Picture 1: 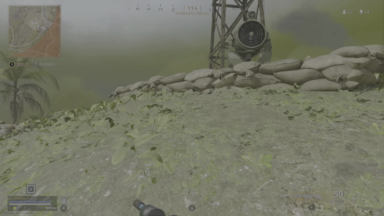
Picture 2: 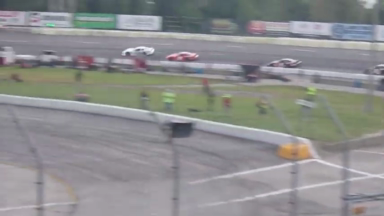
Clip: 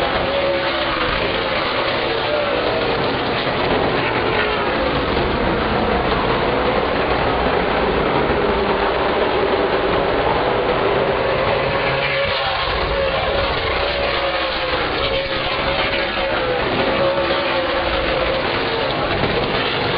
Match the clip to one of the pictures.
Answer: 2